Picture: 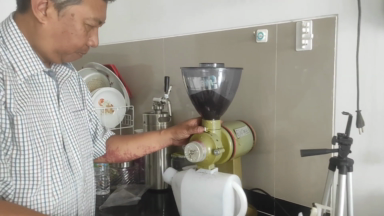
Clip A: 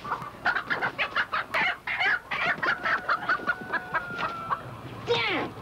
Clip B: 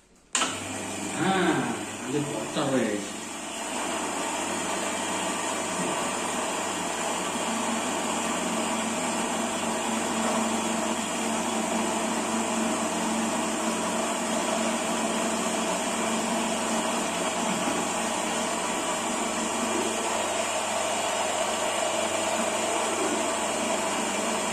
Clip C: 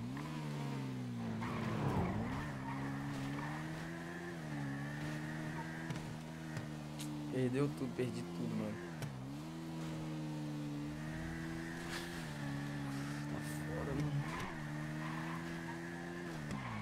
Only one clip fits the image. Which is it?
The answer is B